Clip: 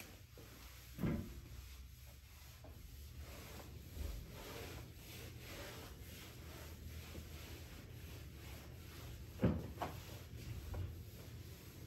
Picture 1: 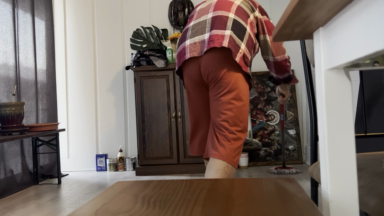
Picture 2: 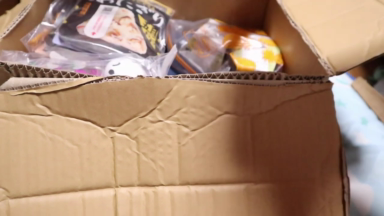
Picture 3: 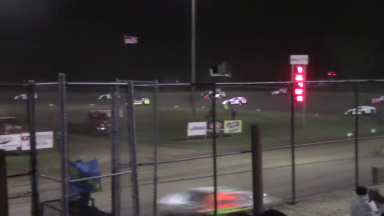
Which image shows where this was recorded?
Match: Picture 1